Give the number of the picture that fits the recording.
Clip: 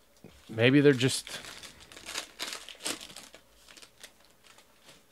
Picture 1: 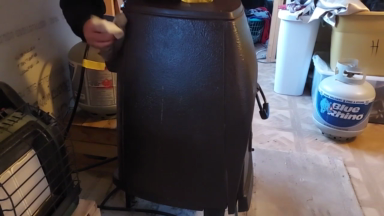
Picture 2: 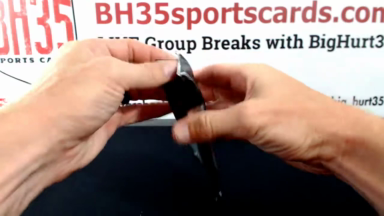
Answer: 2